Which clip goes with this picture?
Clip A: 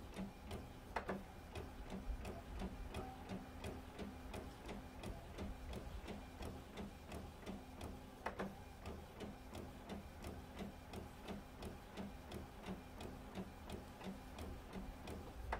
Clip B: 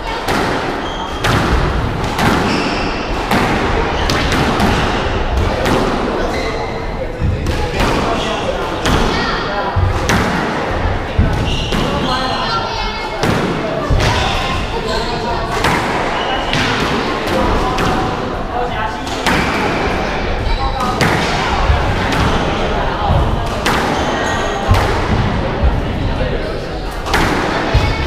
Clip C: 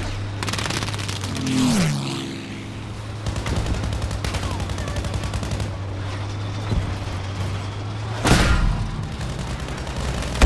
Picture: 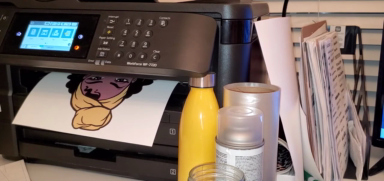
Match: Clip A